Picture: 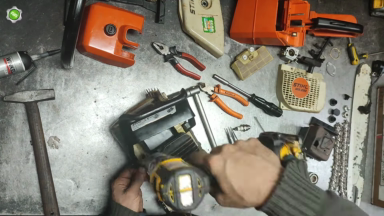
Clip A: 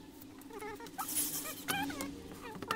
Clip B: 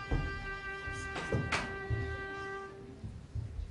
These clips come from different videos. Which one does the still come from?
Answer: A